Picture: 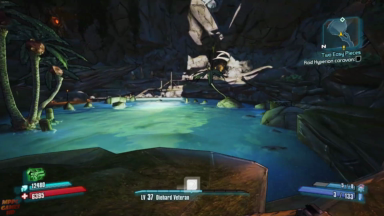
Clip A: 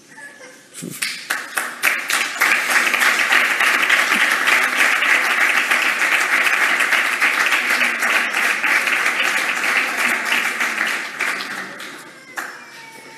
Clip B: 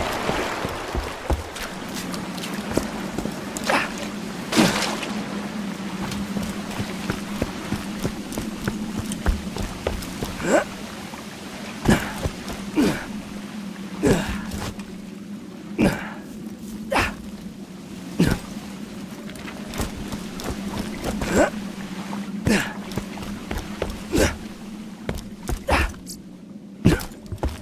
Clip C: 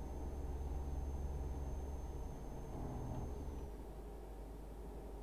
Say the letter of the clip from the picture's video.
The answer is B